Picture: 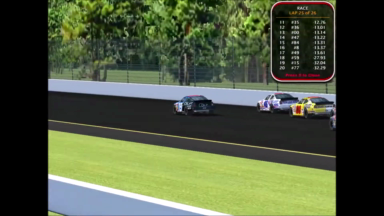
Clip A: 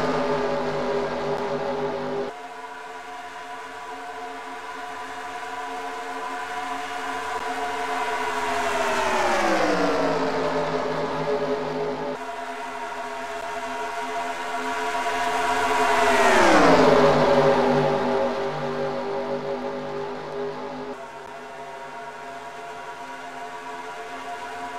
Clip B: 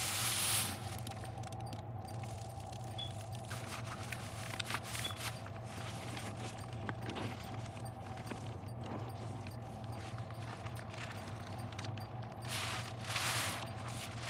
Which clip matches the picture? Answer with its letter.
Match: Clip A